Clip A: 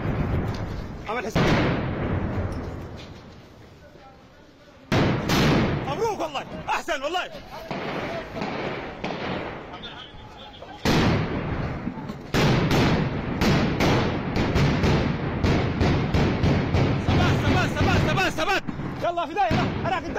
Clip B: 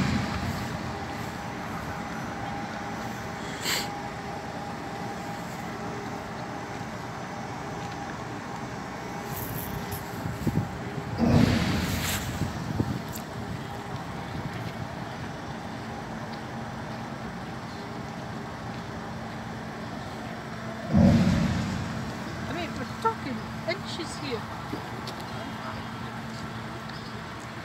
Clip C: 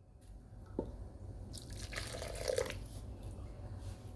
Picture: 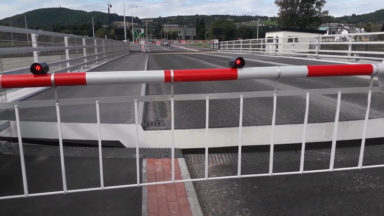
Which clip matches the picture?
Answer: B